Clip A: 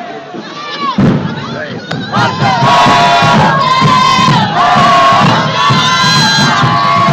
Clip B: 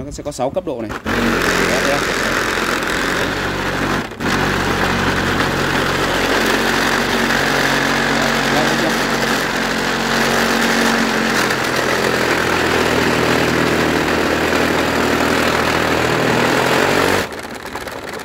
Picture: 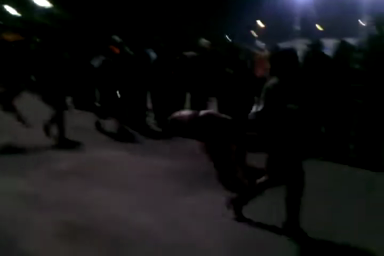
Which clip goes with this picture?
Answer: A